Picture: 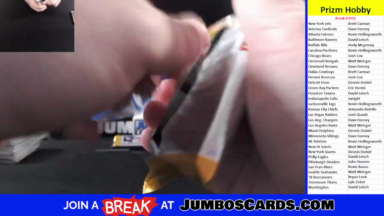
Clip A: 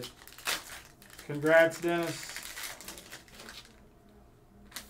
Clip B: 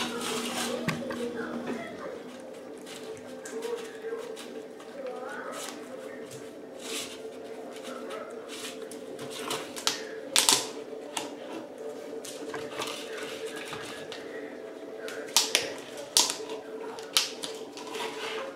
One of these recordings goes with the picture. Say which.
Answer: A